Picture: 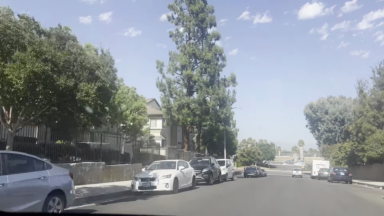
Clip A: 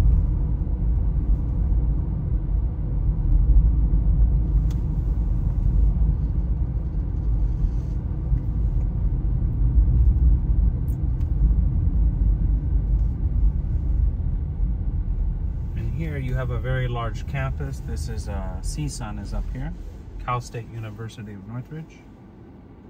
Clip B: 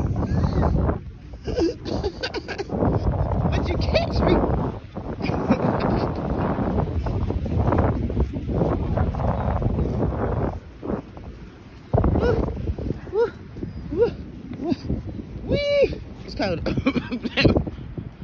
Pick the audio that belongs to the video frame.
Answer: A